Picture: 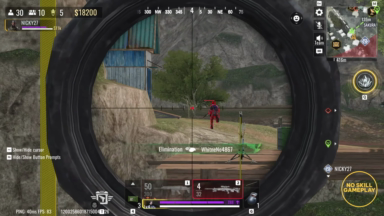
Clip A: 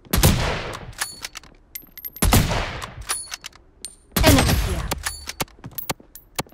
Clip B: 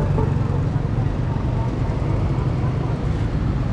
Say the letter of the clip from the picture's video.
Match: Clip A